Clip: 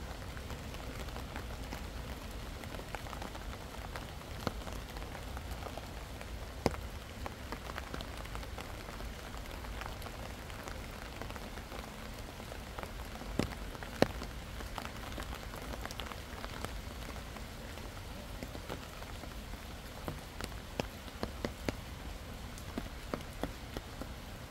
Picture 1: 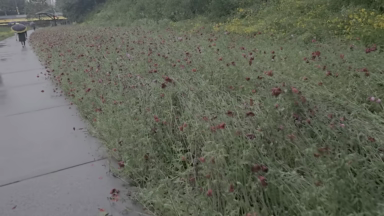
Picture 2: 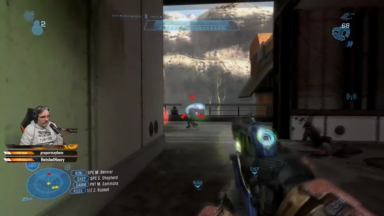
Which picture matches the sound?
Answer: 1